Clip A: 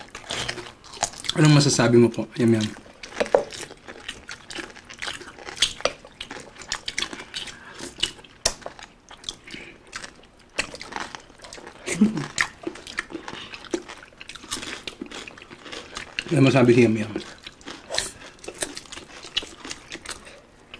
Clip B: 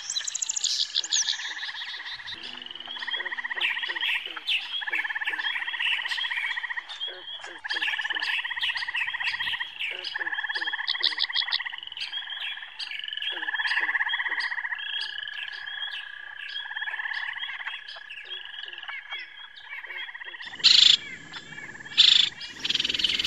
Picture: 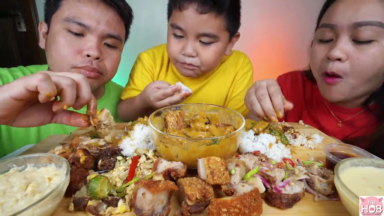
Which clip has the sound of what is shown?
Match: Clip A